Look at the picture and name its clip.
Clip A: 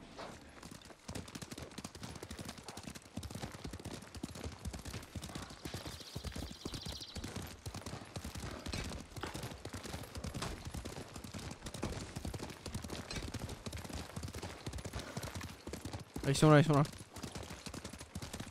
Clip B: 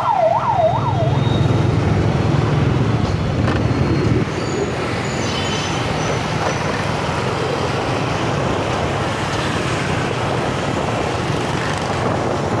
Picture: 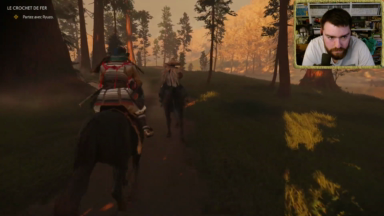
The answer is A